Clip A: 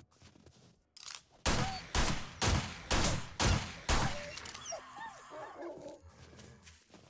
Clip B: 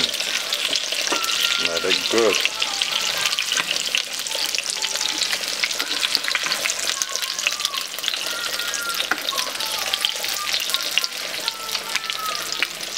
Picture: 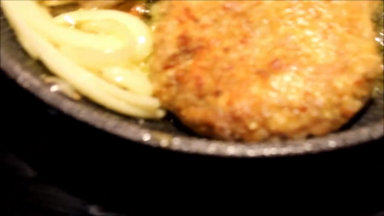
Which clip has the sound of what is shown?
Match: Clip B